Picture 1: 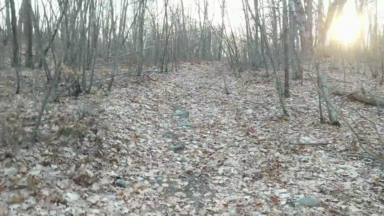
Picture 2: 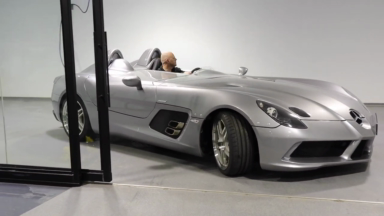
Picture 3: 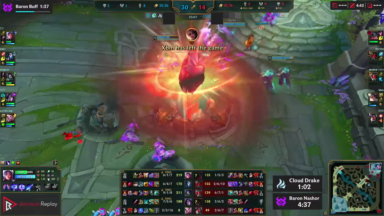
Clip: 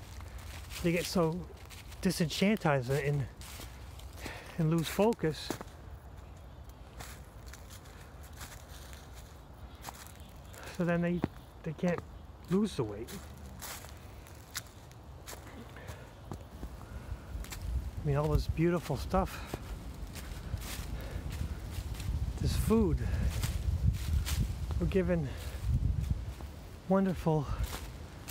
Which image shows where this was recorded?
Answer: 1